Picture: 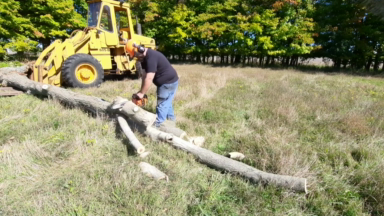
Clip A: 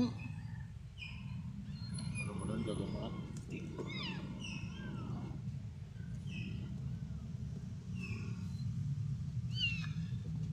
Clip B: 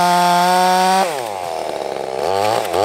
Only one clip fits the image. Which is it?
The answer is B